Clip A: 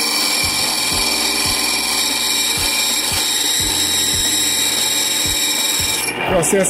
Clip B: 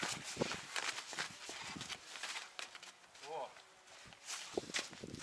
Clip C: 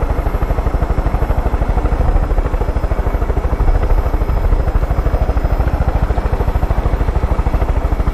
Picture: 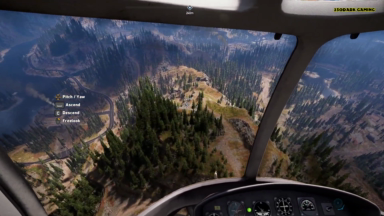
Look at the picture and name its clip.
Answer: C